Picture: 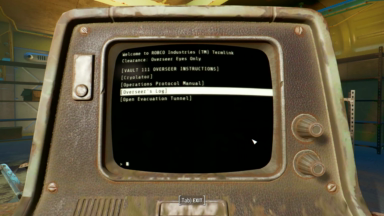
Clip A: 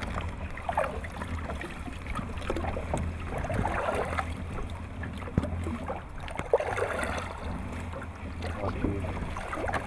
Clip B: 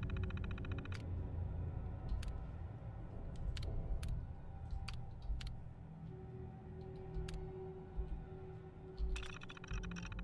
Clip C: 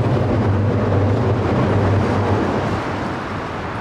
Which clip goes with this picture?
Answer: B